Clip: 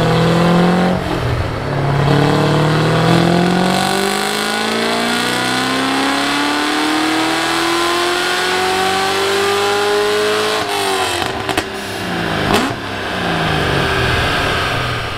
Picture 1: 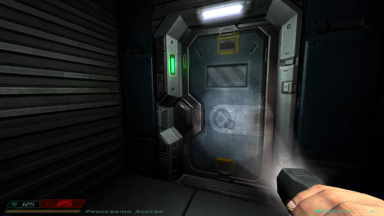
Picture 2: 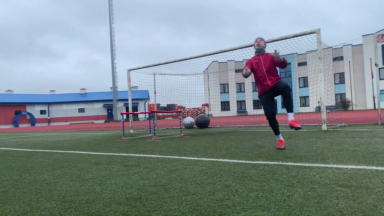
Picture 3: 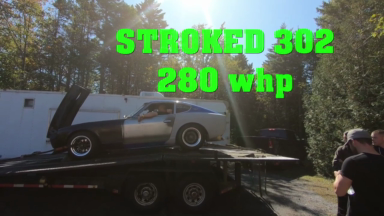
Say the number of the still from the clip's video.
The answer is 3